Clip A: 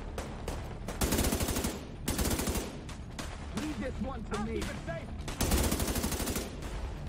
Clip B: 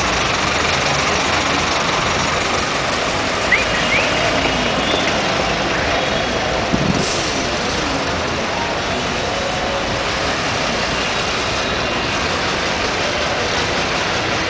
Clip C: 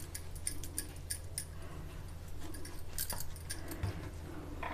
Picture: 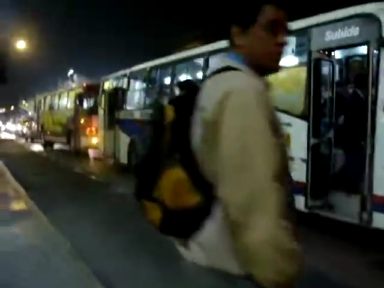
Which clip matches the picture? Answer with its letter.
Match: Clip B